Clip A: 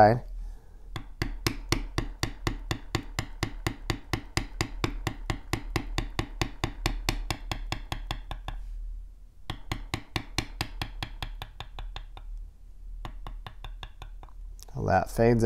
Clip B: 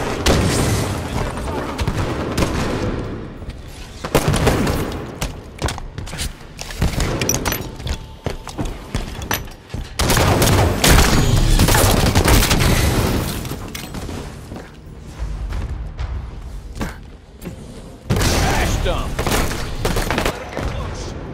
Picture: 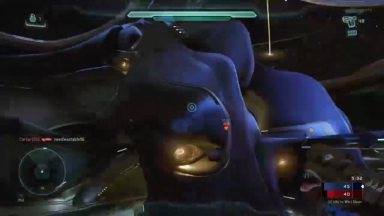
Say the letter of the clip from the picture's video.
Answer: B